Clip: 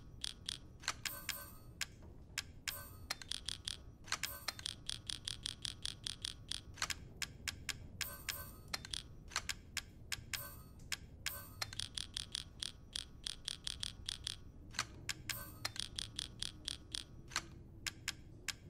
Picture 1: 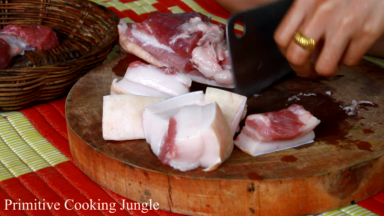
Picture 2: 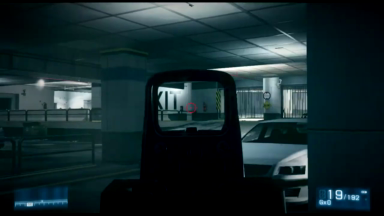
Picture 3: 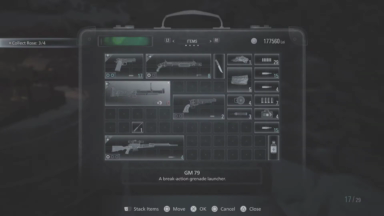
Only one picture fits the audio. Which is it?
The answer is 3